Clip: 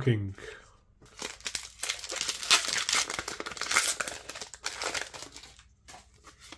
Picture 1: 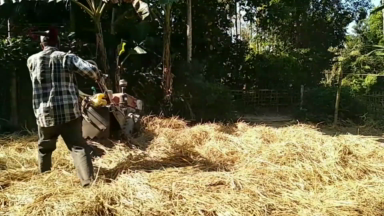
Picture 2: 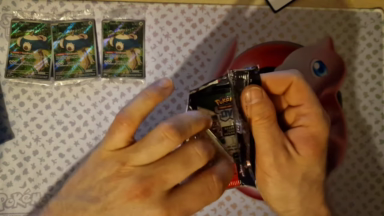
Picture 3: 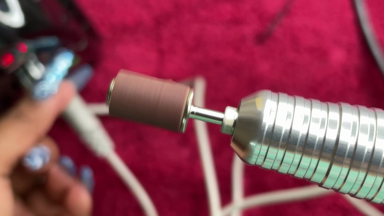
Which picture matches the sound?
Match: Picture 2